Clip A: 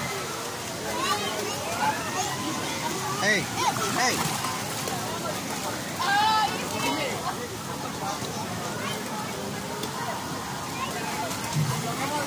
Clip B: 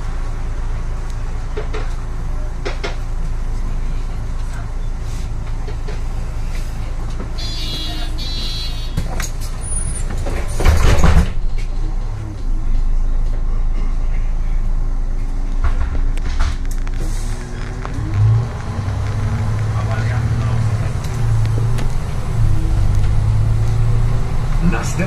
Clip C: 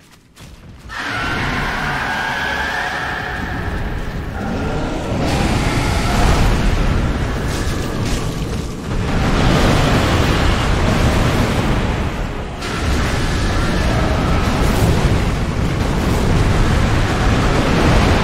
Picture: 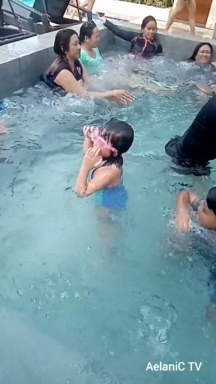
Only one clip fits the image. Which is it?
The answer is A